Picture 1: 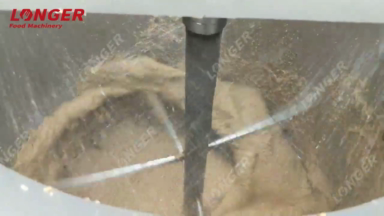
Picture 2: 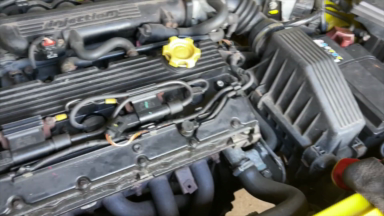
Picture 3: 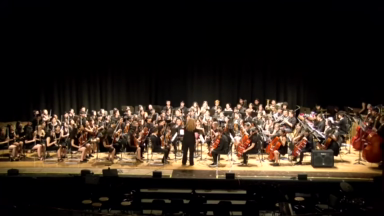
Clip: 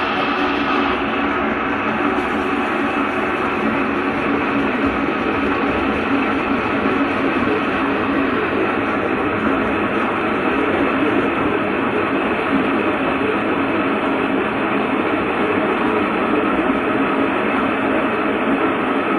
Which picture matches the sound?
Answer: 1